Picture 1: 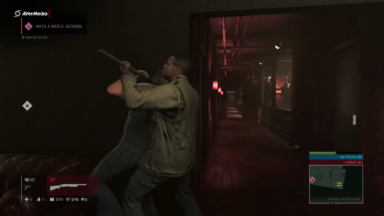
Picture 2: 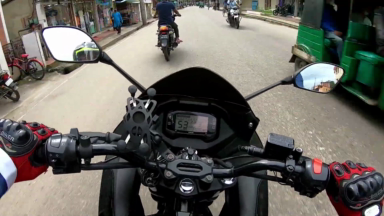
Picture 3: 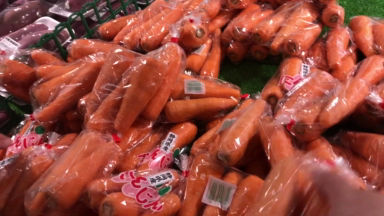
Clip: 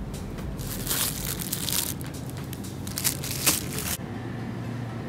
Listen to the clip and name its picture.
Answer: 3